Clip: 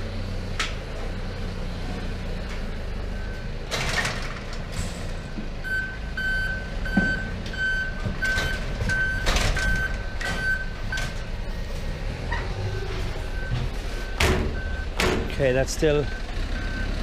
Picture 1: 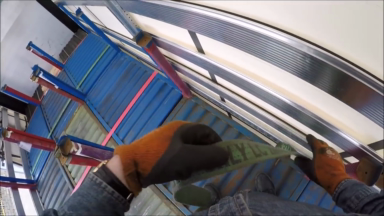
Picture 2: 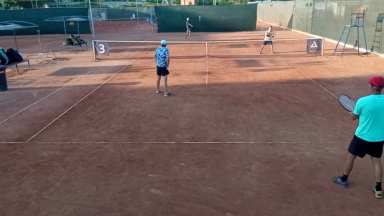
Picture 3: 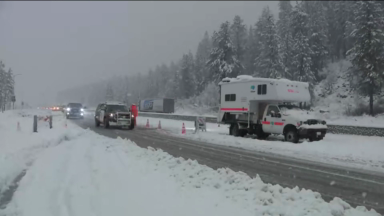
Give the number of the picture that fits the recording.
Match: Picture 1